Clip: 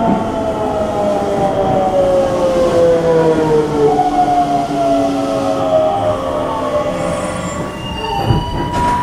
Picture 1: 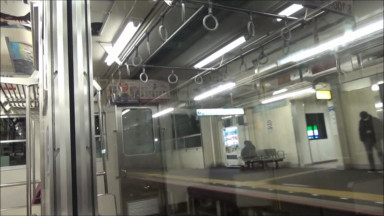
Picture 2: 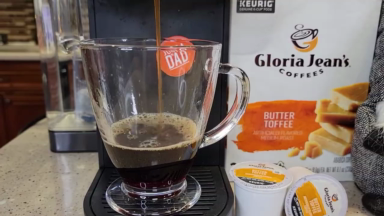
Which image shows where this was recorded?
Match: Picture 1